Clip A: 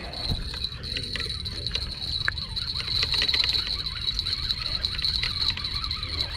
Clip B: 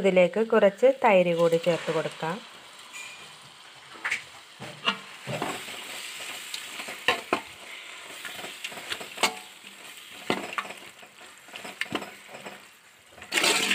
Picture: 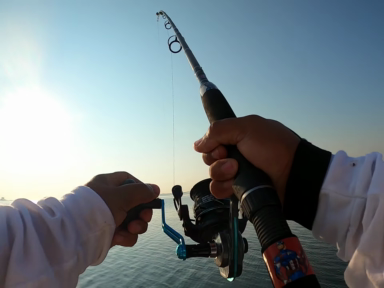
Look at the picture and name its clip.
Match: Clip A